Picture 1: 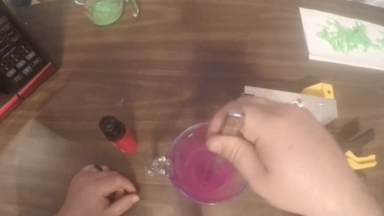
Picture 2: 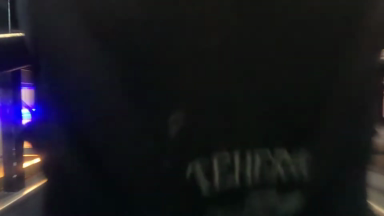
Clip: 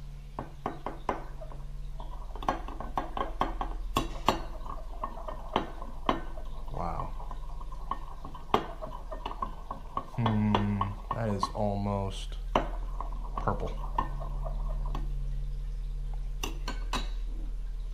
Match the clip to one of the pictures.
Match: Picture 1